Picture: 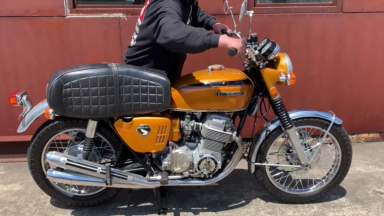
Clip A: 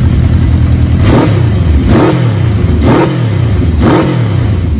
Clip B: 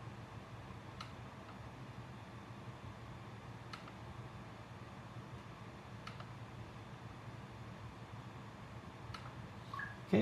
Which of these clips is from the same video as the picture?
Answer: A